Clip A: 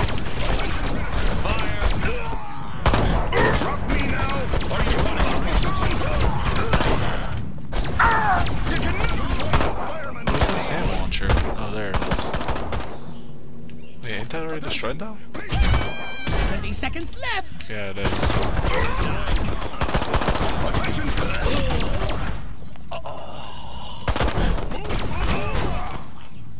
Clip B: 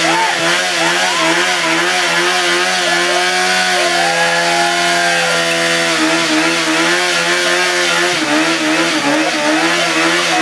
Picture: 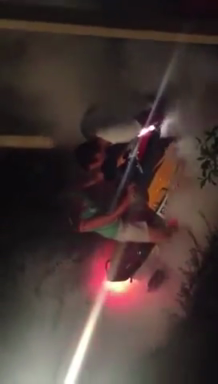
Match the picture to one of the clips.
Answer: B